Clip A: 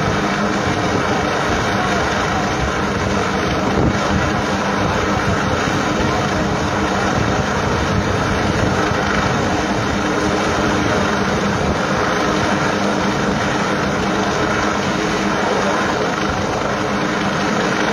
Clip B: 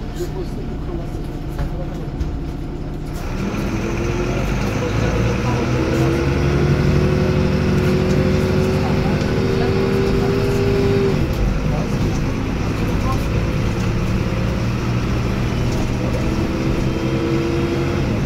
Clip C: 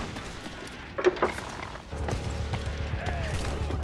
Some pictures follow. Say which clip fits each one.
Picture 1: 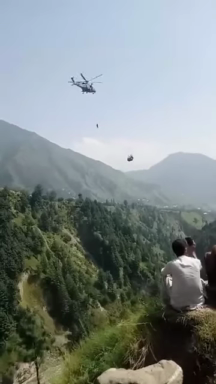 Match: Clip A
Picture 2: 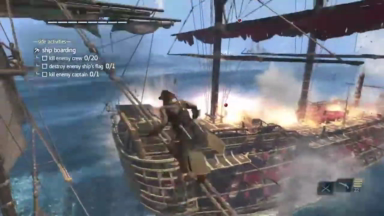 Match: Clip C